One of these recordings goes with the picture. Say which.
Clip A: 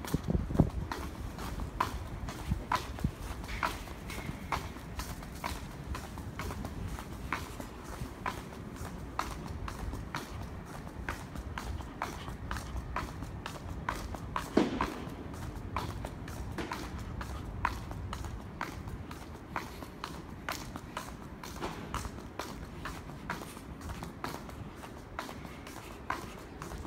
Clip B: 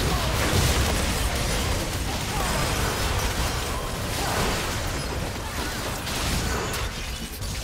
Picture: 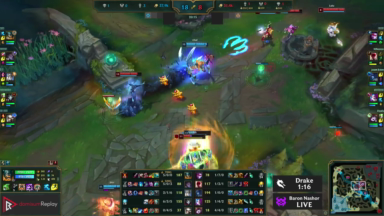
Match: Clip B